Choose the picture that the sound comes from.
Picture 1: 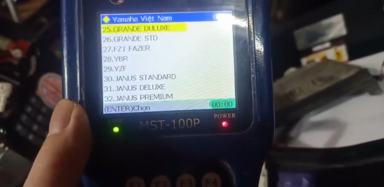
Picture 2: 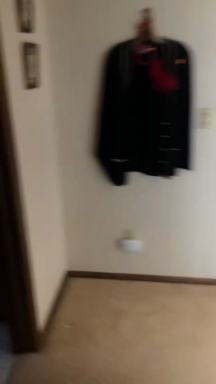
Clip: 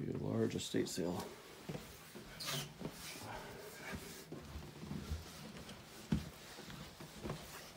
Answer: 2